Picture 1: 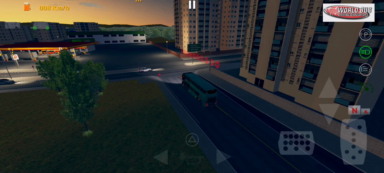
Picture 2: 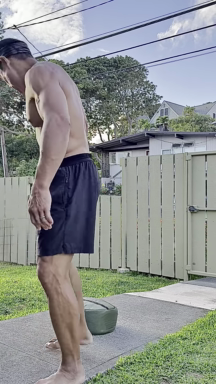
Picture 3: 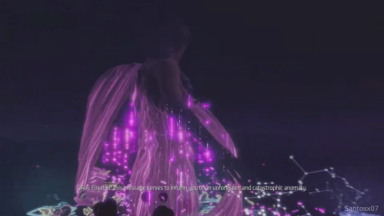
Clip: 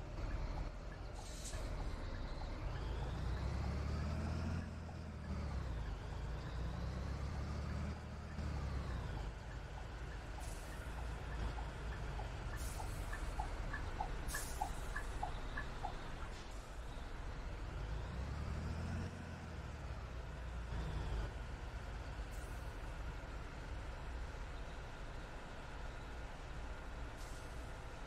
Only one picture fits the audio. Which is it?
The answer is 1